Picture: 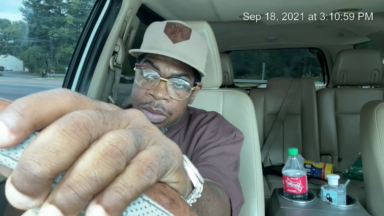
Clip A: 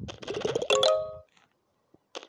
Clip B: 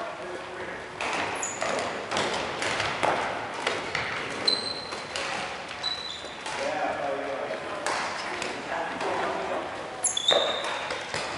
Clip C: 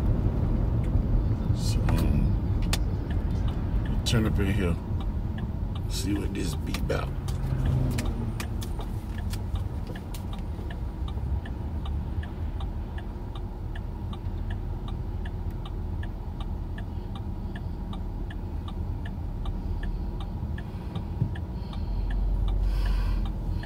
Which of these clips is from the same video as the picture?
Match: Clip C